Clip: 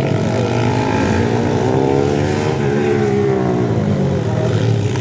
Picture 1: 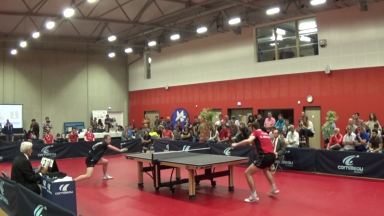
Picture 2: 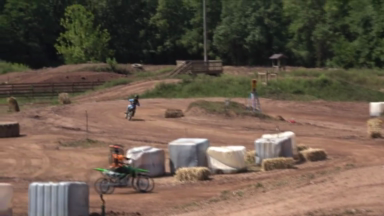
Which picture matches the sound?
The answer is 2